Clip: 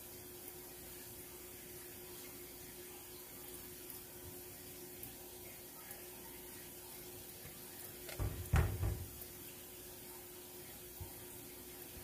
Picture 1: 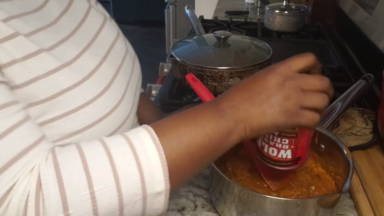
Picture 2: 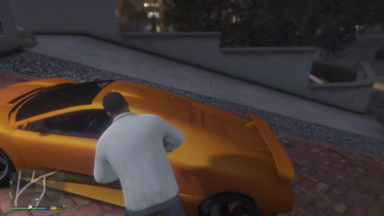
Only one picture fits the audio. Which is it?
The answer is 1